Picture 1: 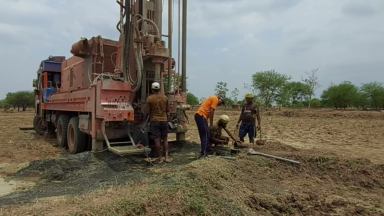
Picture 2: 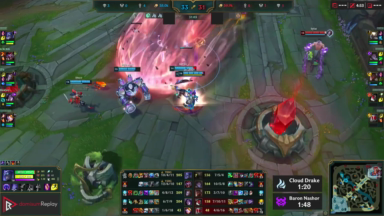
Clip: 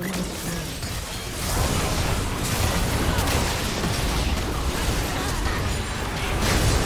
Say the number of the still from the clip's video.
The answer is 2